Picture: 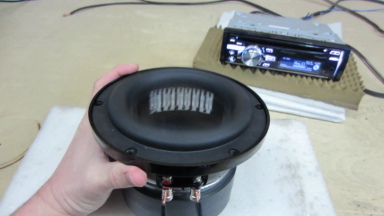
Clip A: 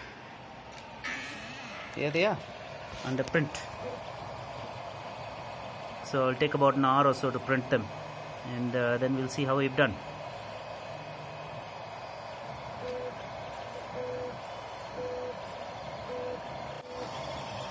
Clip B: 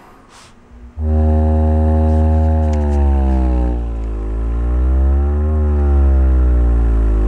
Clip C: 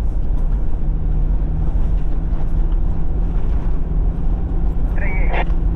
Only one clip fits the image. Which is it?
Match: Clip B